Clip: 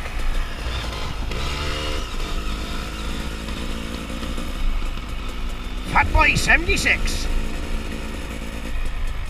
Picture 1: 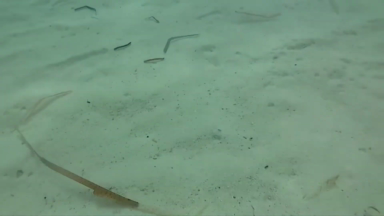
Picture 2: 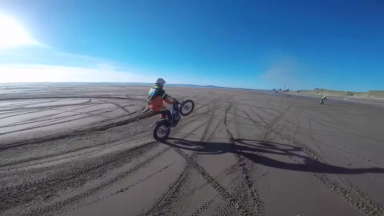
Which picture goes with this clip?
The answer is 2